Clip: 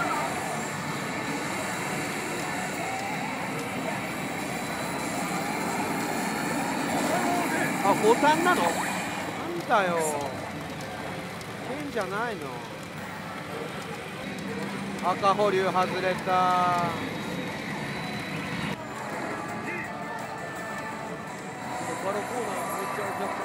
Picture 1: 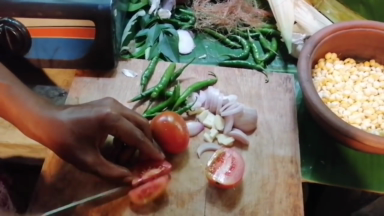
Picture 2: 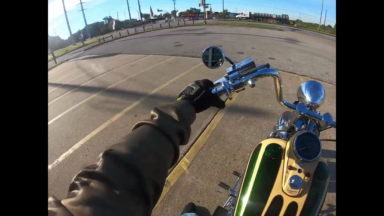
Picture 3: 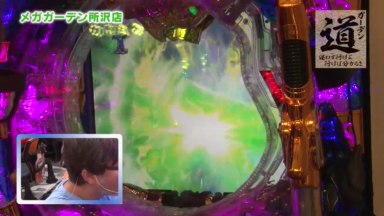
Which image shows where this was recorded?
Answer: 3